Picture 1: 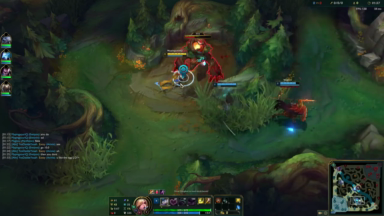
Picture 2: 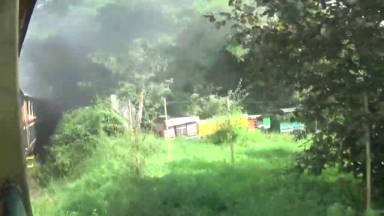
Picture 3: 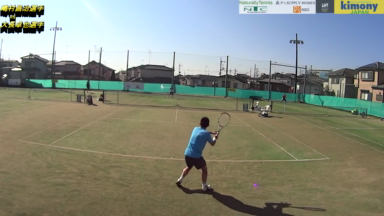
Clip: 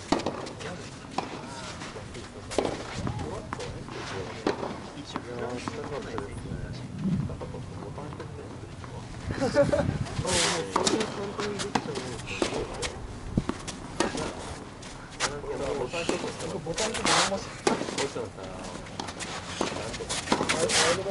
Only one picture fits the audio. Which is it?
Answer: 3